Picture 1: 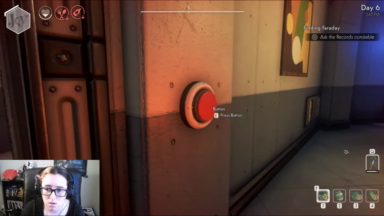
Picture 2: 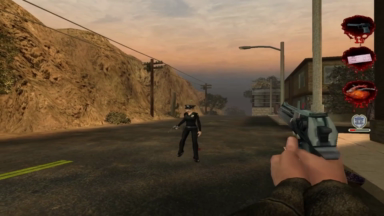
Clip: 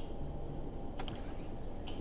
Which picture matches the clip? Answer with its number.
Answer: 1